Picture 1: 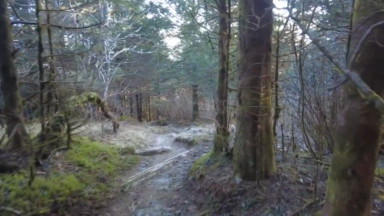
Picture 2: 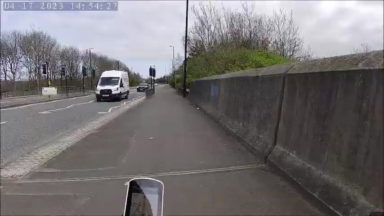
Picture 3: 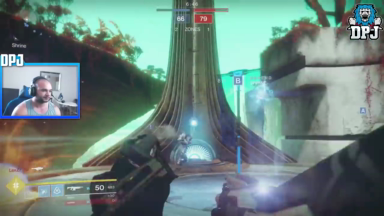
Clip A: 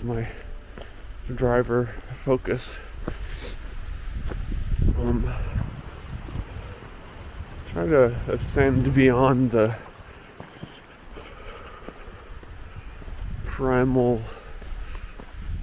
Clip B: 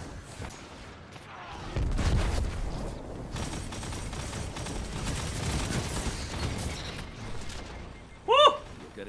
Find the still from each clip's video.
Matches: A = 1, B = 3